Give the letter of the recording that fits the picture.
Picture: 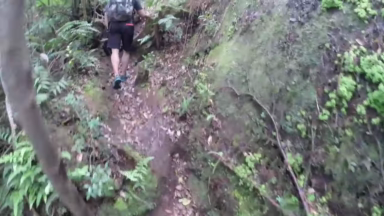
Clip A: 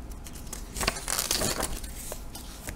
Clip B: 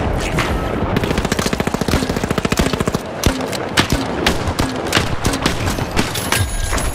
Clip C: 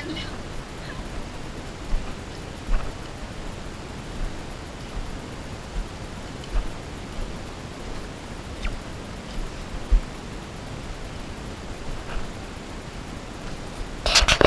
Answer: C